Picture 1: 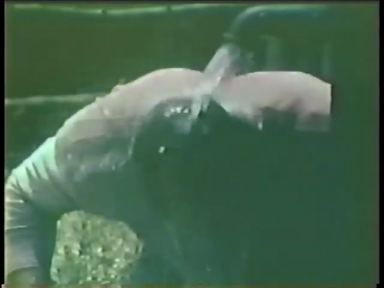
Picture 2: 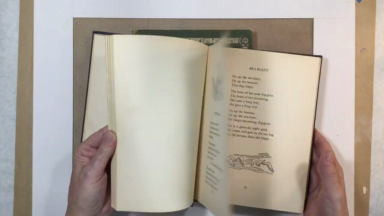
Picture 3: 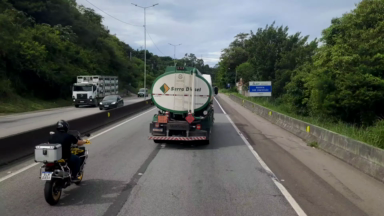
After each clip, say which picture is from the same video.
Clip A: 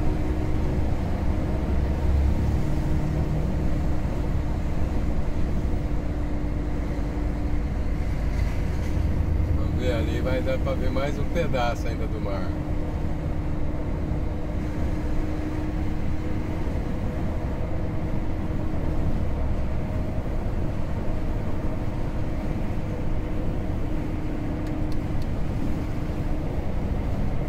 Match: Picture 3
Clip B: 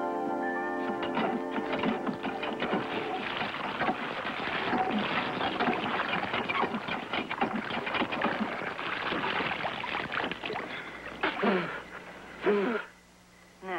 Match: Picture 1